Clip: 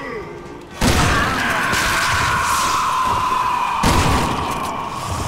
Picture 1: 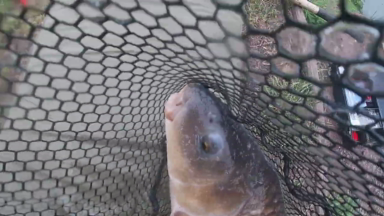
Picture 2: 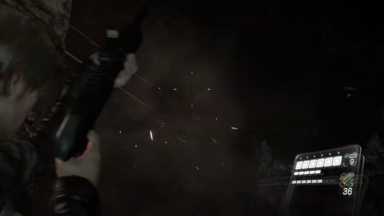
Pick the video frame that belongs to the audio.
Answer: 2